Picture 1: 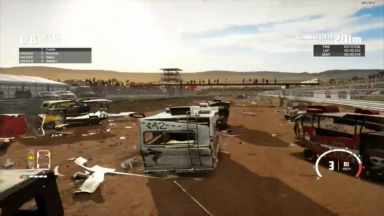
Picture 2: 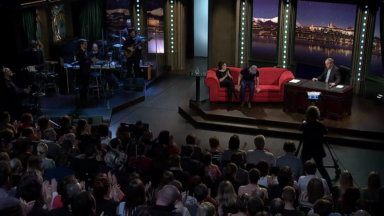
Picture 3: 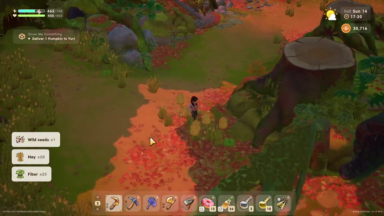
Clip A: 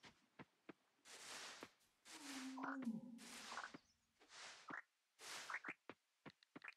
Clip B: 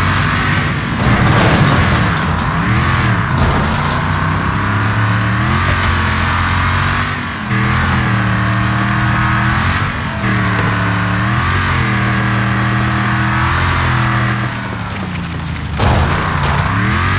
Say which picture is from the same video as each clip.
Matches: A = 3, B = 1